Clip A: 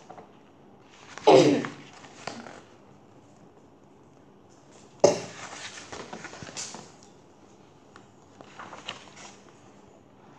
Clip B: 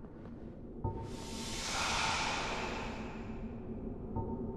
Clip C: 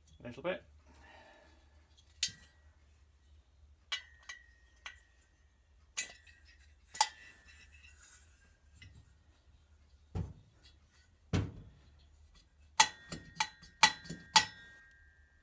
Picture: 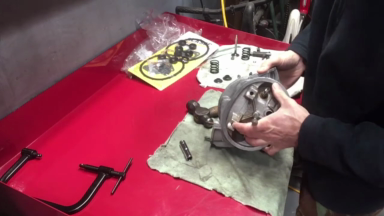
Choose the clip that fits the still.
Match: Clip C